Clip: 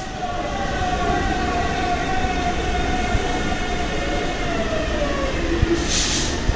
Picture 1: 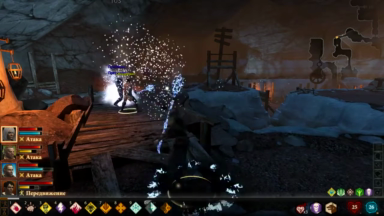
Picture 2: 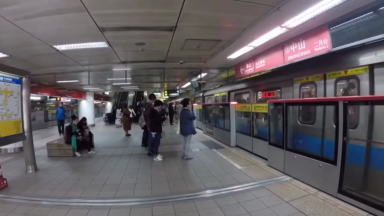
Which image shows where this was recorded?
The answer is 2